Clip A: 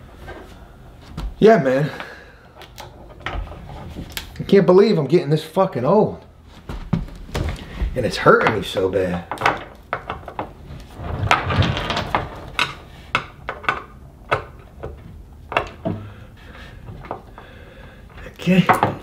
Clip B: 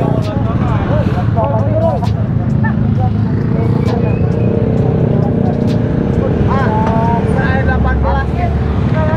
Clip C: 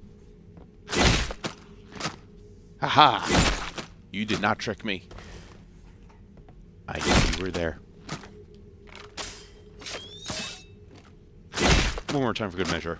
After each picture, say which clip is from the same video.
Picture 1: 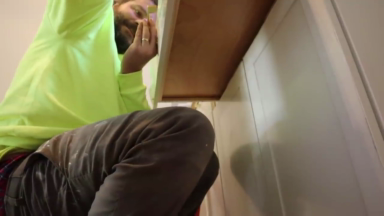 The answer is A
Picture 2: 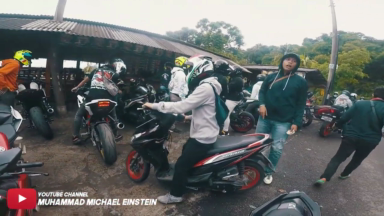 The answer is B